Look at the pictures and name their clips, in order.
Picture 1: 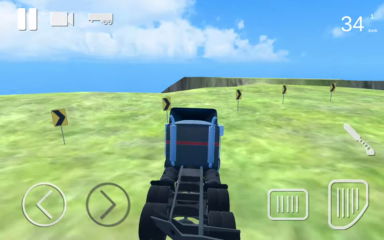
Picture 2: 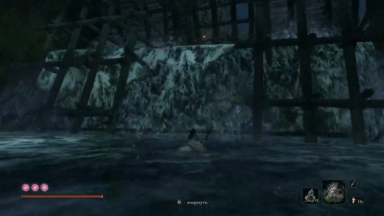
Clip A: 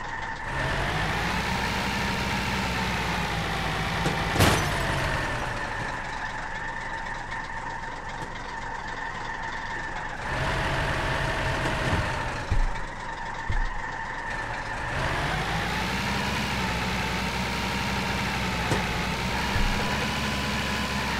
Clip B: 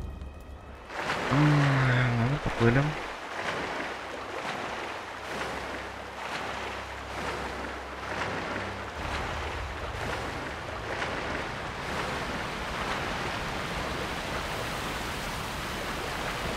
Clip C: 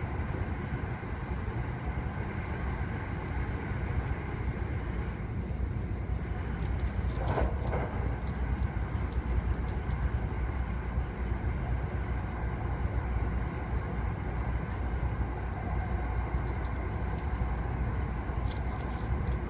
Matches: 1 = A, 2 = B